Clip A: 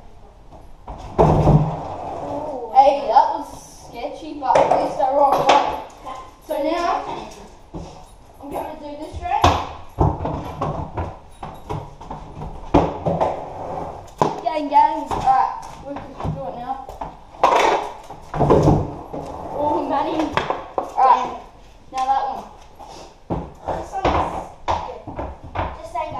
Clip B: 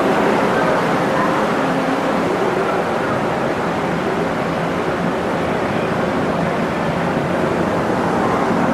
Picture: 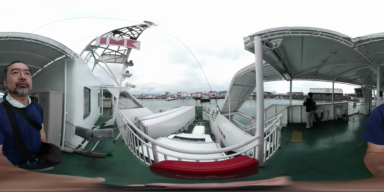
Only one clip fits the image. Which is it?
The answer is B